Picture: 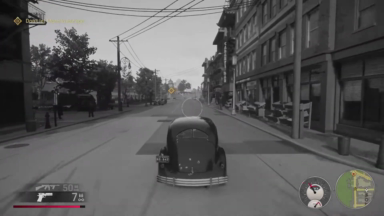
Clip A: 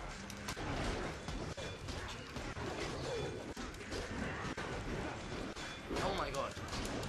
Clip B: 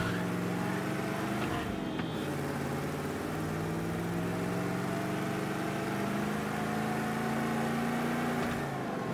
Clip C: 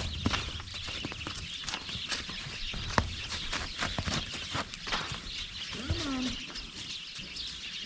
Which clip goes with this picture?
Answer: B